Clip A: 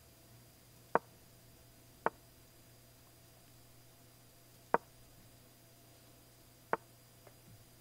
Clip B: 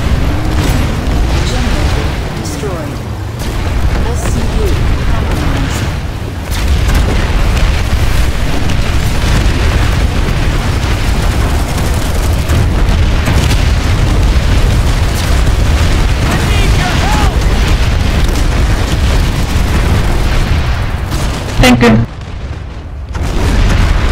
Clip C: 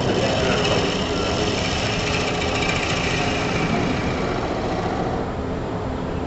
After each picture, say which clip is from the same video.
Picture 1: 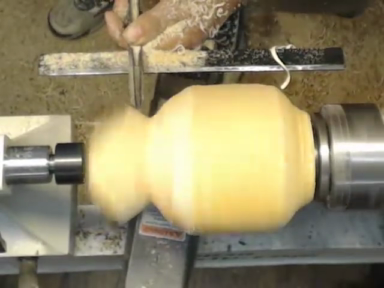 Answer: C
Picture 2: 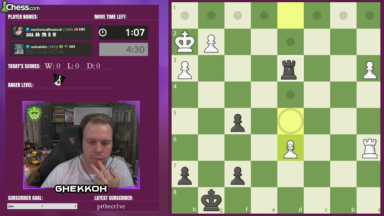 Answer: A